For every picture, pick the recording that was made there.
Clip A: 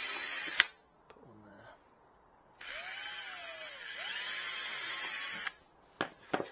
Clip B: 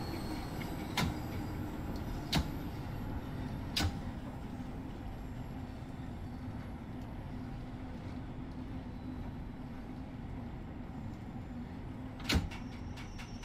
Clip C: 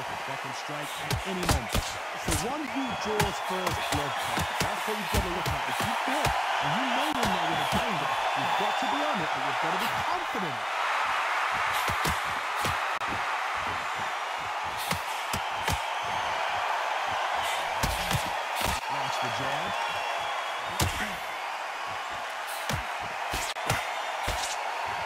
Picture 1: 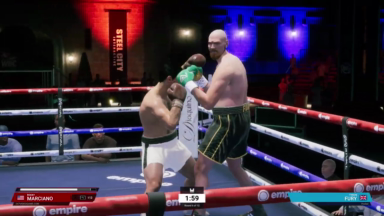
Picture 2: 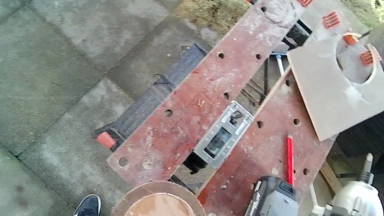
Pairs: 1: C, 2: A